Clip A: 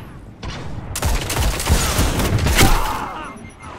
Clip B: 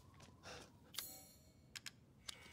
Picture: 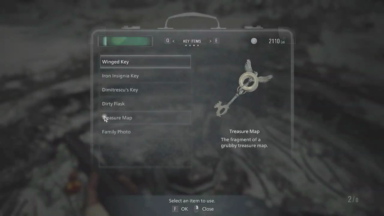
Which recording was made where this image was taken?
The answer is B